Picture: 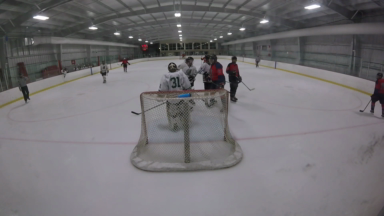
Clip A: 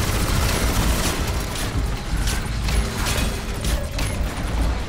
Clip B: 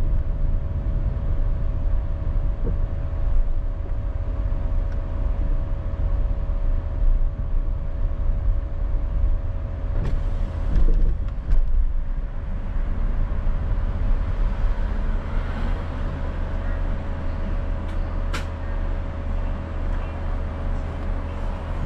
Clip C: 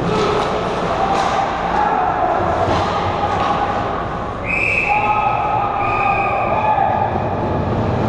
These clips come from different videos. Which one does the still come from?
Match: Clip C